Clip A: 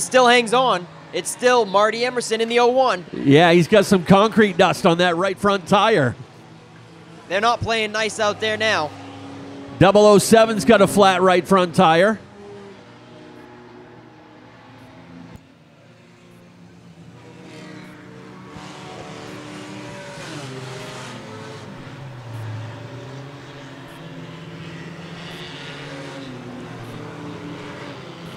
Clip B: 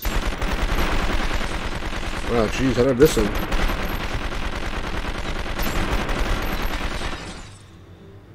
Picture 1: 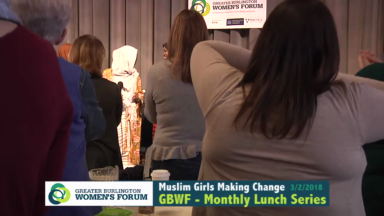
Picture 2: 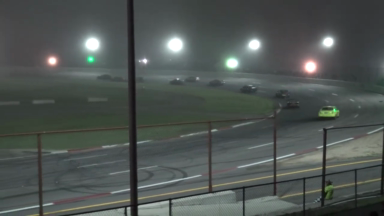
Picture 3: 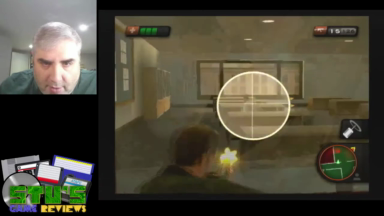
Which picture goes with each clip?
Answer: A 2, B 3